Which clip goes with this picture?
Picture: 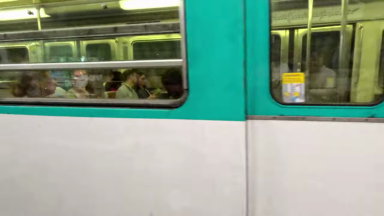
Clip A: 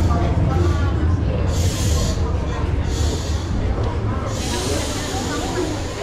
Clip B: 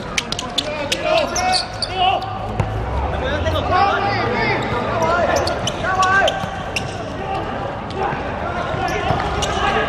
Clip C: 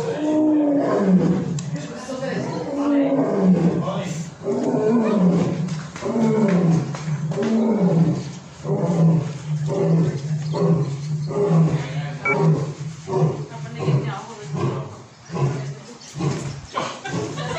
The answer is A